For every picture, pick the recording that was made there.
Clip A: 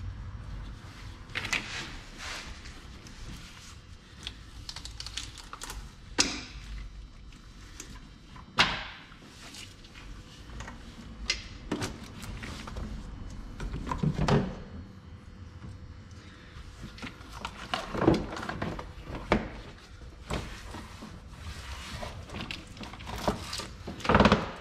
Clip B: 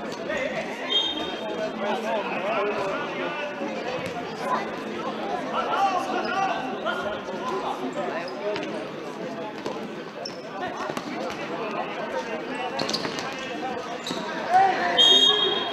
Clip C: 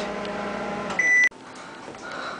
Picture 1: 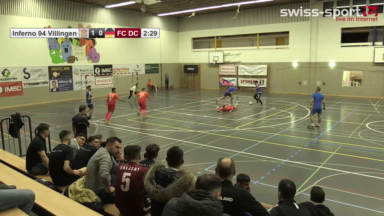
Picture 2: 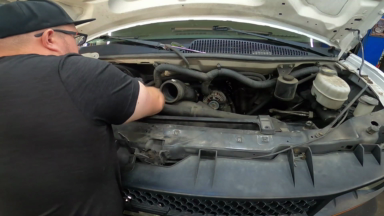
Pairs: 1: B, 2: A